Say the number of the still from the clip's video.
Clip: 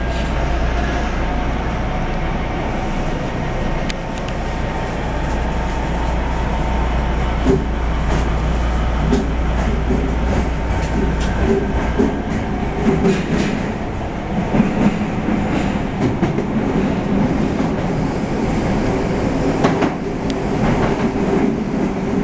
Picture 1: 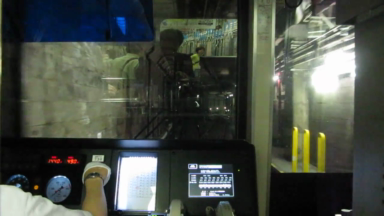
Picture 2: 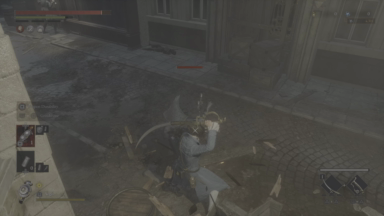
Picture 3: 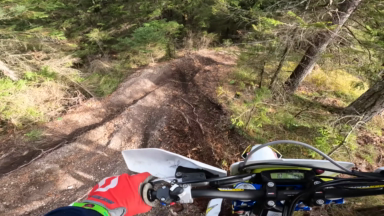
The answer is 1